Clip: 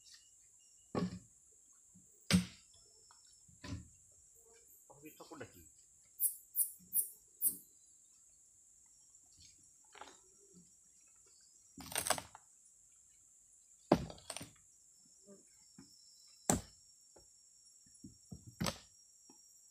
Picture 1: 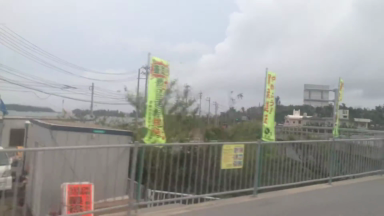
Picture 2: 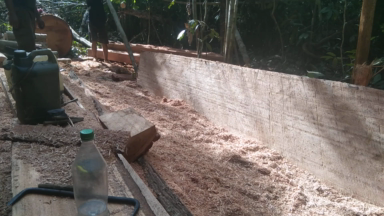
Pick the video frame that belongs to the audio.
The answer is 2